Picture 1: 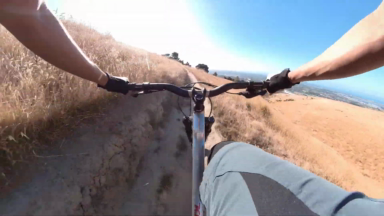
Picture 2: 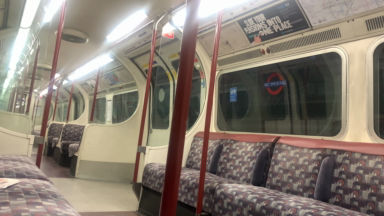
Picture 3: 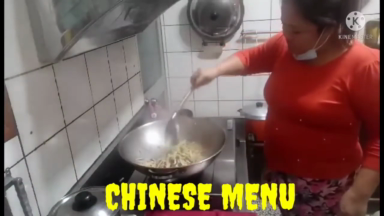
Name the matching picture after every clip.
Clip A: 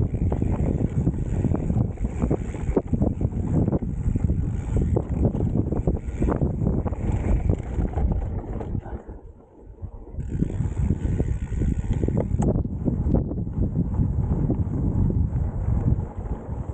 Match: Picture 1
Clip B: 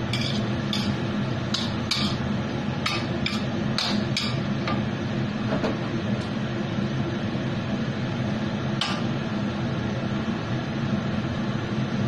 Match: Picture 3